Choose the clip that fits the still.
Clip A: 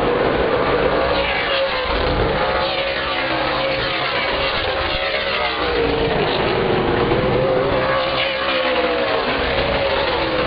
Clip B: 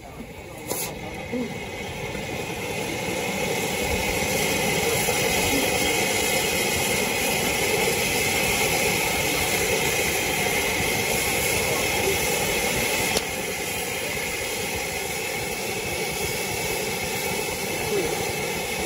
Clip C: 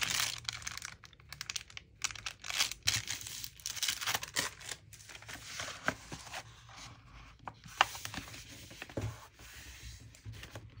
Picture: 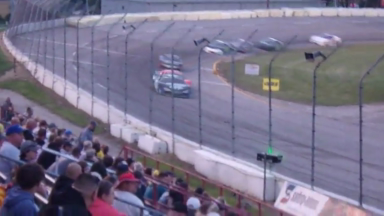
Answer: A